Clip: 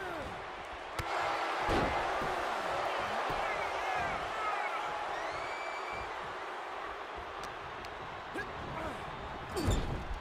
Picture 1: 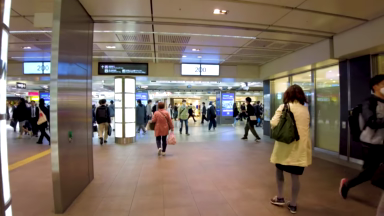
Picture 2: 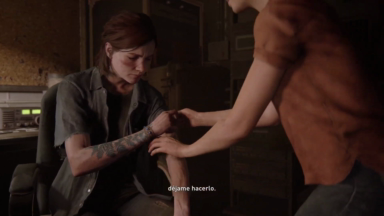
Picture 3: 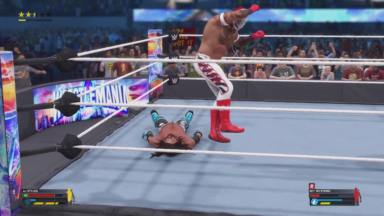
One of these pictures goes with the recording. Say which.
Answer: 3